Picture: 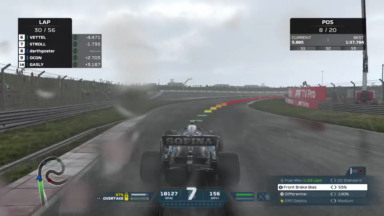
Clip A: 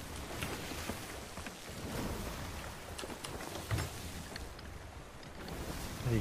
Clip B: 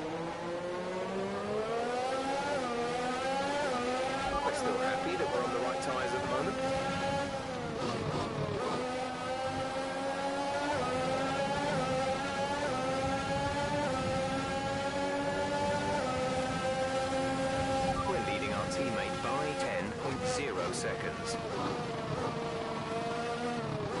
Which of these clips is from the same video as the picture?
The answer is B